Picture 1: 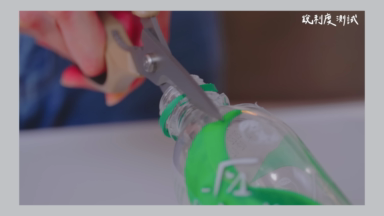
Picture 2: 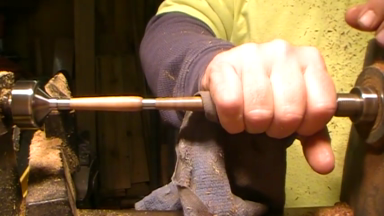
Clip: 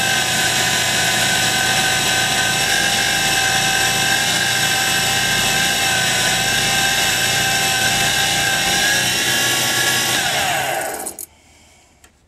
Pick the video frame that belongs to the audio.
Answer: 2